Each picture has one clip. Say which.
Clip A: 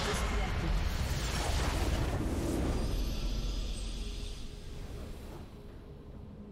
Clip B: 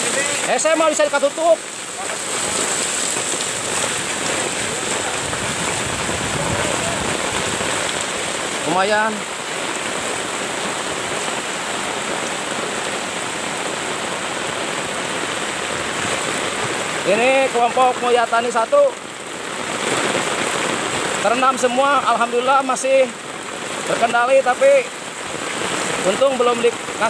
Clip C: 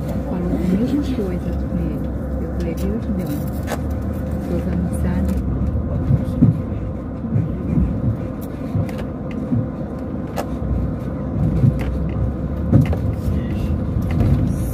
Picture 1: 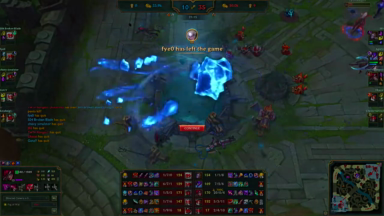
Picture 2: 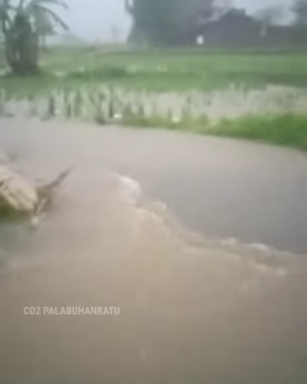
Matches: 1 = A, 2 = B